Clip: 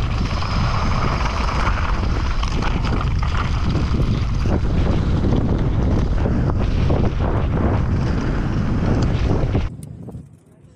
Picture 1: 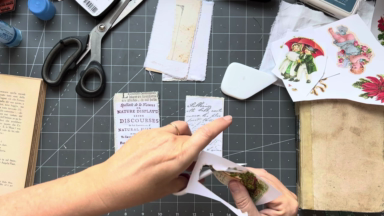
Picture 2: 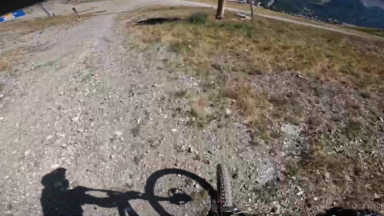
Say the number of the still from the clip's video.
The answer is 2